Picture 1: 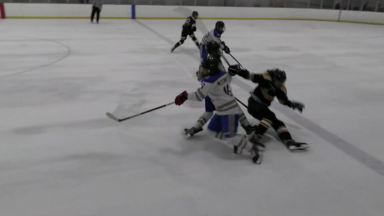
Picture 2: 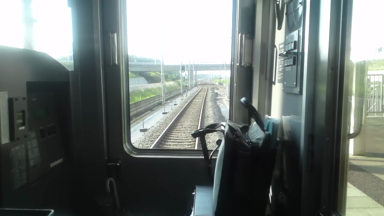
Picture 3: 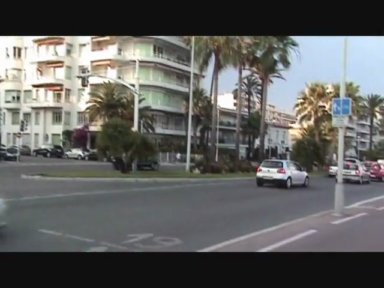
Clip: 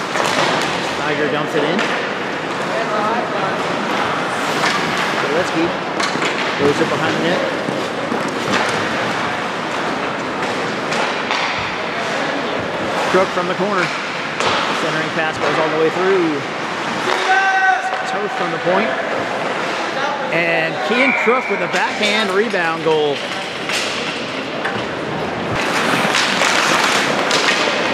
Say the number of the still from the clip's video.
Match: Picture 1